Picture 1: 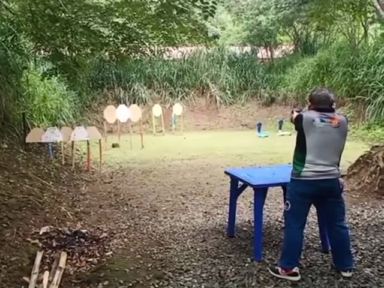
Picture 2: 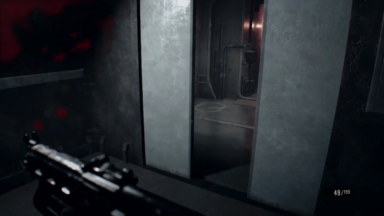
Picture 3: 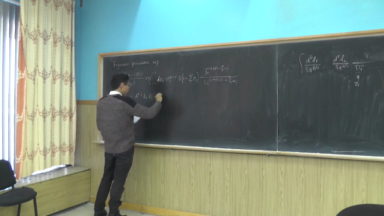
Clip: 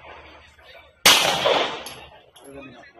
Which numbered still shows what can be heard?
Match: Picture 1